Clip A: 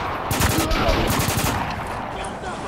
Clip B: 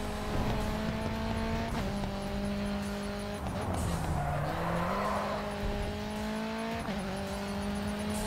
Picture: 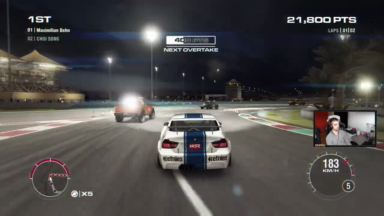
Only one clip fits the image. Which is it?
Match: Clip B